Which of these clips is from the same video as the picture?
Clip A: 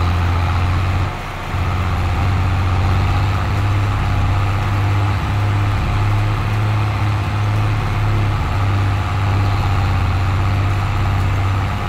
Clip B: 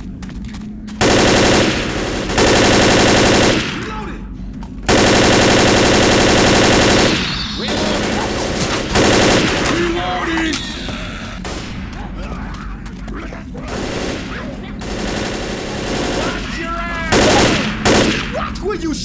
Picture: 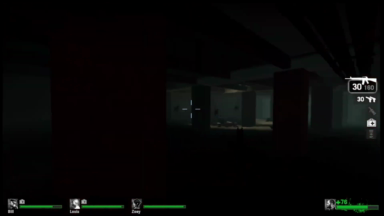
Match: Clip B